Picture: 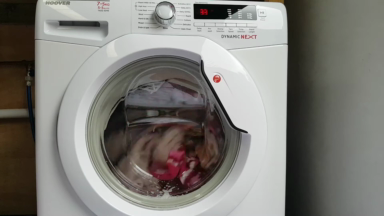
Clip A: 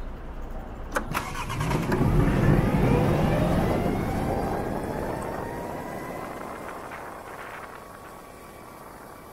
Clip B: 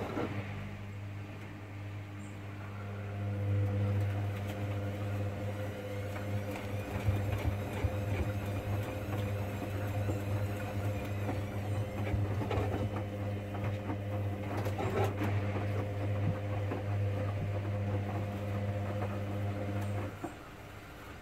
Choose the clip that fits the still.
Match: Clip B